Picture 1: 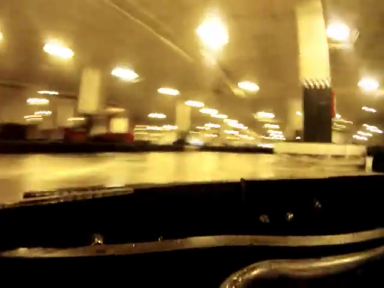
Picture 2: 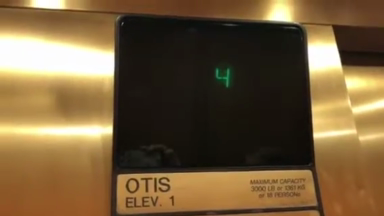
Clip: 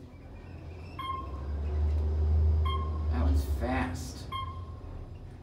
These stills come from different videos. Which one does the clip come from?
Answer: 2